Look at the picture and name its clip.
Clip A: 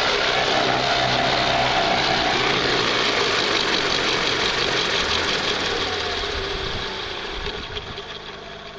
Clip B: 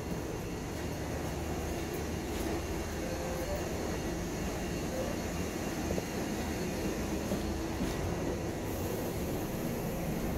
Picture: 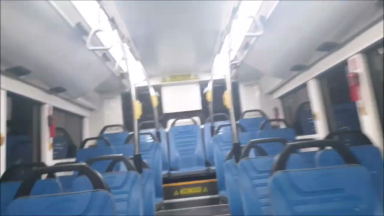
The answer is B